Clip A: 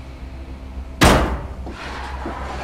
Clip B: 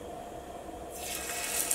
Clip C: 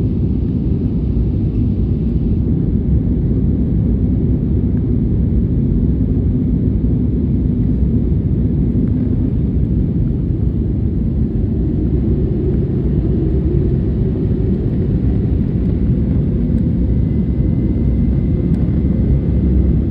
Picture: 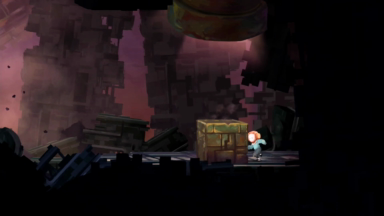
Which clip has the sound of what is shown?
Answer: A